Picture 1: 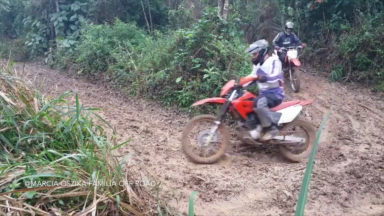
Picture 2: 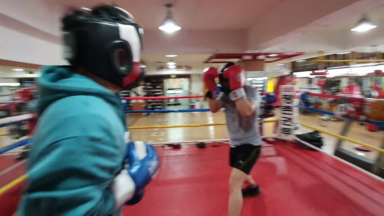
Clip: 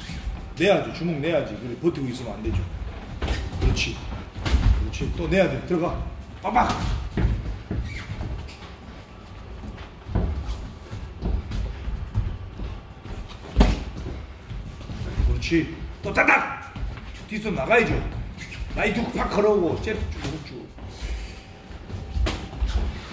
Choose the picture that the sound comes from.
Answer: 2